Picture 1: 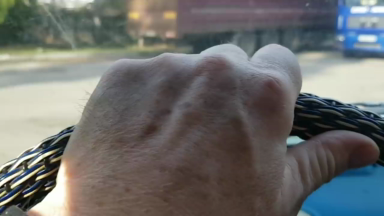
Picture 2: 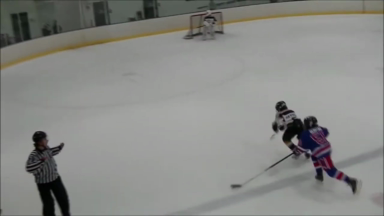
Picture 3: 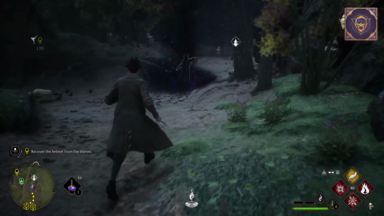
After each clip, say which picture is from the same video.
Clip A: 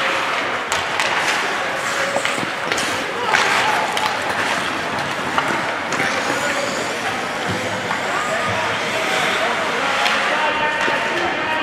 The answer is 2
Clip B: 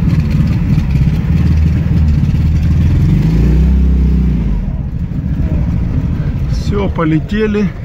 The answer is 1